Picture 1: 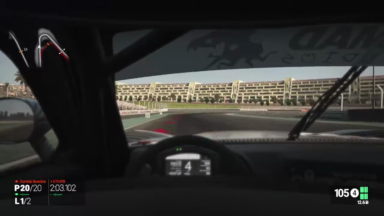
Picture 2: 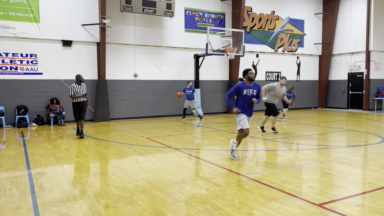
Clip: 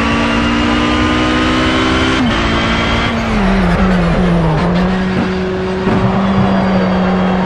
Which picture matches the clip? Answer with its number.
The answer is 1